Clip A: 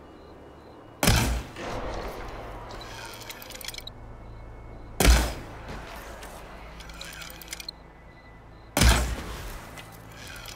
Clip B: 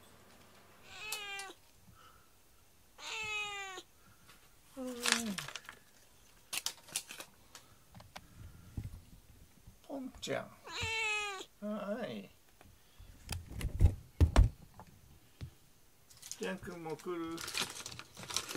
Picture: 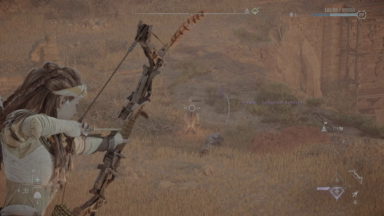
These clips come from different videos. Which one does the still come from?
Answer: A